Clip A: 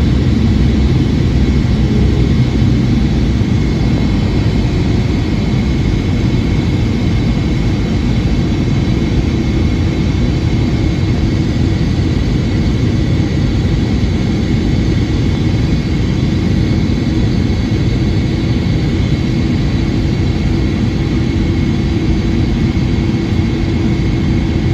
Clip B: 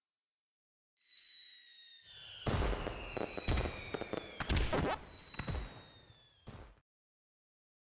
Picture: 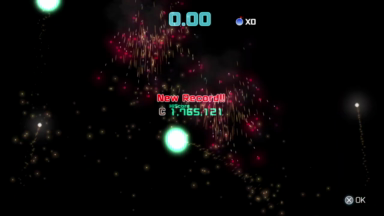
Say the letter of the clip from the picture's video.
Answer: B